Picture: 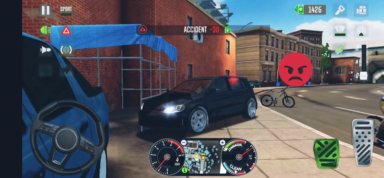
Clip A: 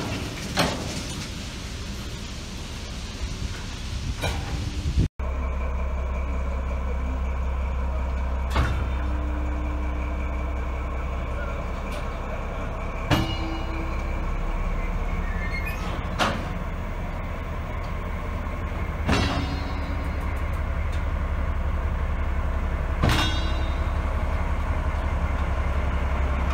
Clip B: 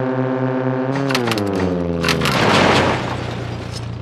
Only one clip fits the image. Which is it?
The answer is B